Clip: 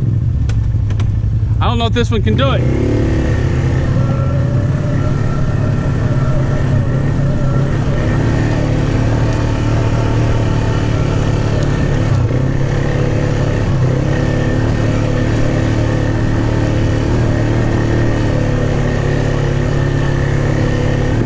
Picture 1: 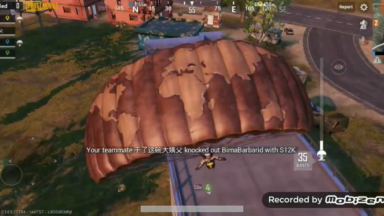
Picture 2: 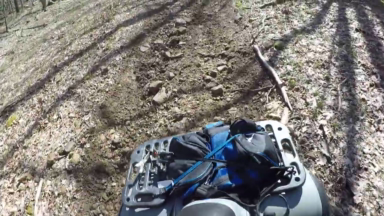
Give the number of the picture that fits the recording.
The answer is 2